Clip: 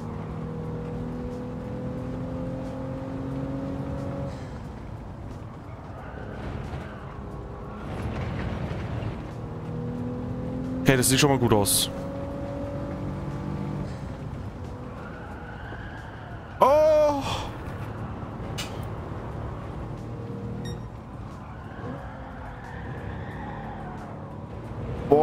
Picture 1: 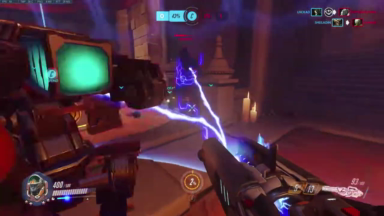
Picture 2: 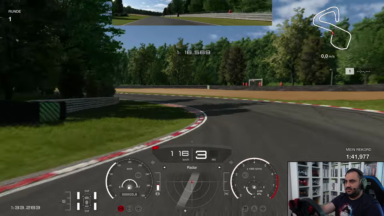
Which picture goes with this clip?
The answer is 2